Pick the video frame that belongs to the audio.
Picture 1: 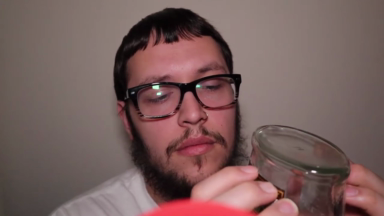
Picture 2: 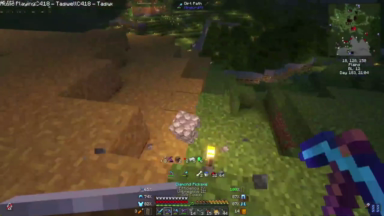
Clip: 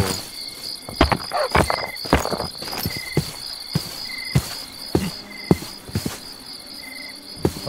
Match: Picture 2